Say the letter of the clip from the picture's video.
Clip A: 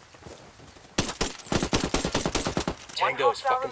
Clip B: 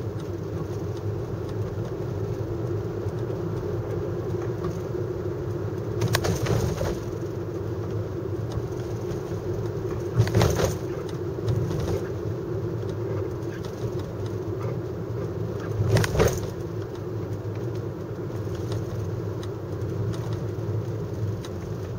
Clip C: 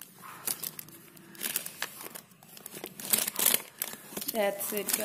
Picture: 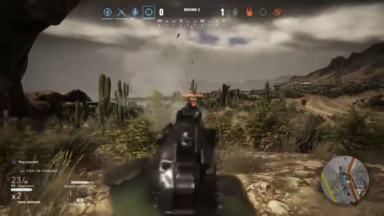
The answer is A